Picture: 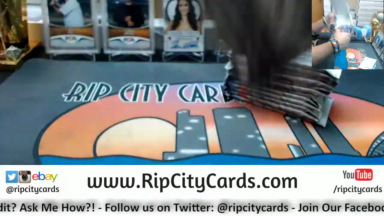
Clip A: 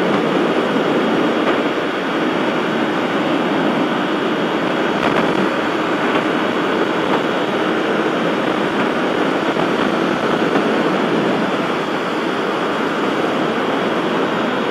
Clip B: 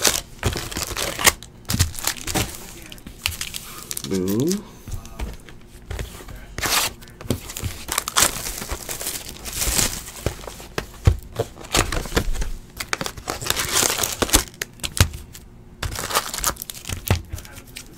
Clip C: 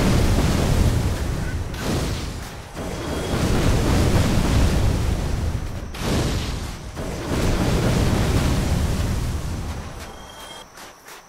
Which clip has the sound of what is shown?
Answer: B